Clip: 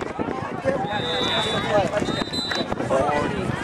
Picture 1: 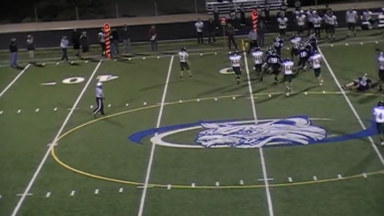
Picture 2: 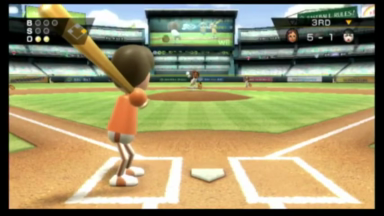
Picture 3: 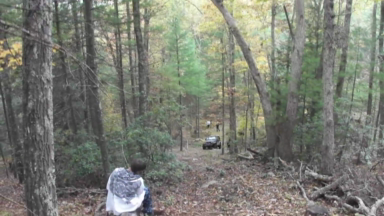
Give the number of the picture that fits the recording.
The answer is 1